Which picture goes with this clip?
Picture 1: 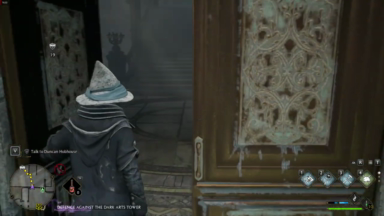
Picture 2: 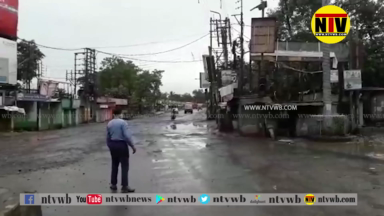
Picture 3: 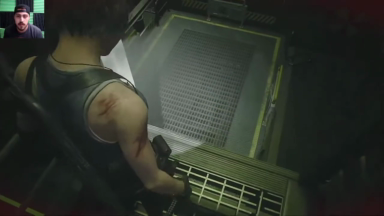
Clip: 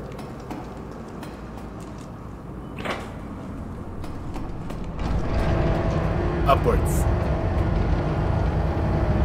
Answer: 3